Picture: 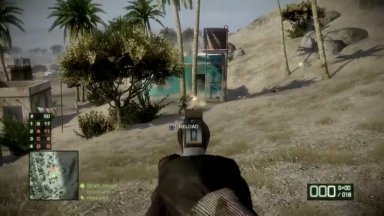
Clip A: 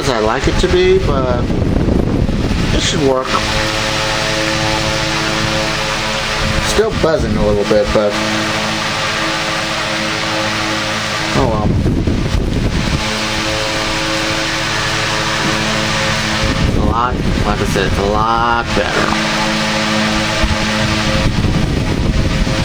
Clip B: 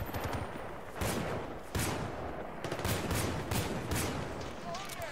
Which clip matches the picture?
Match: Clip B